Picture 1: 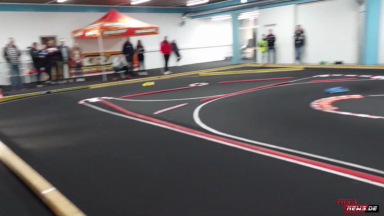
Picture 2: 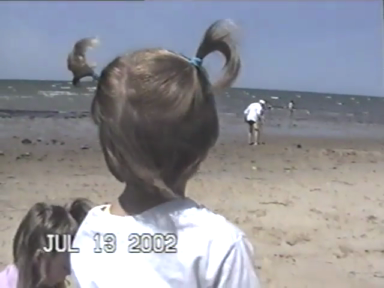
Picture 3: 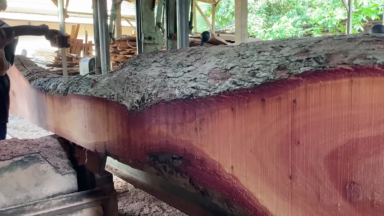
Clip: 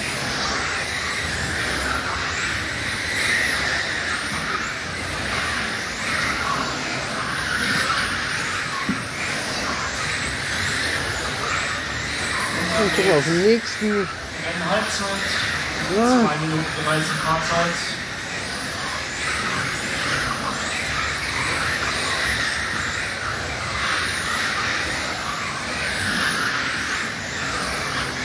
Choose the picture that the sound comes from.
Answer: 1